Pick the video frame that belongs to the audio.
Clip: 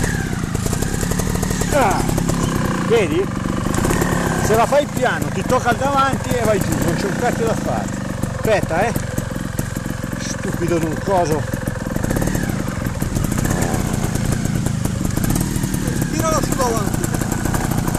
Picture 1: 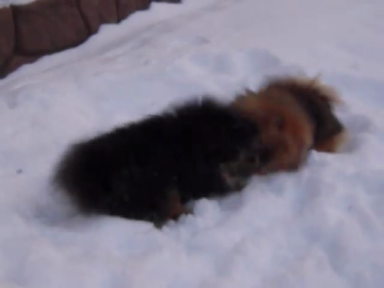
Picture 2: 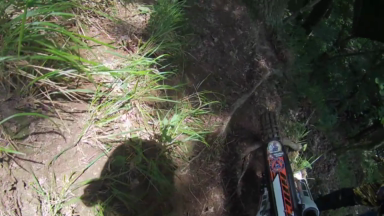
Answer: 2